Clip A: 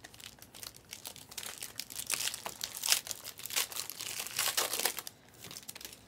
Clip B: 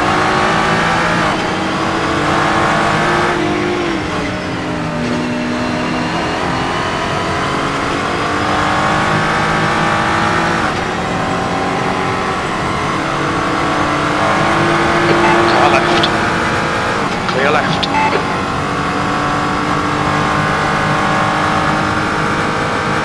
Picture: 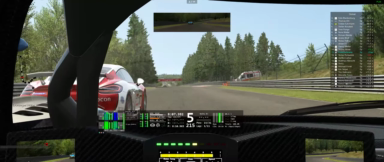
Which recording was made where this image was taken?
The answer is B